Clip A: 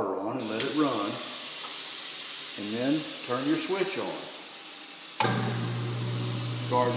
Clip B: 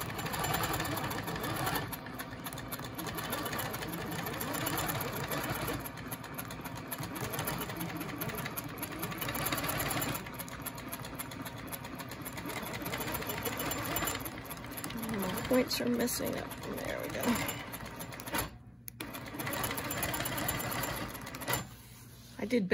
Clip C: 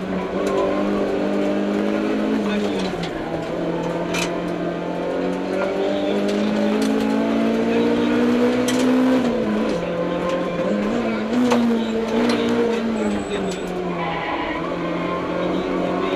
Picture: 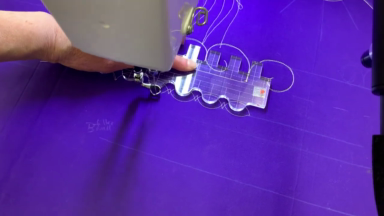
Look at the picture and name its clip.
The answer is B